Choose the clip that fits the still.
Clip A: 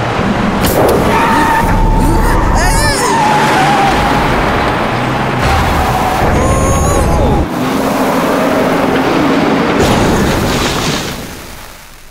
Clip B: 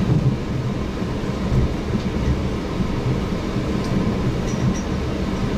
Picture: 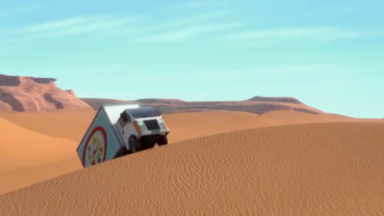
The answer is A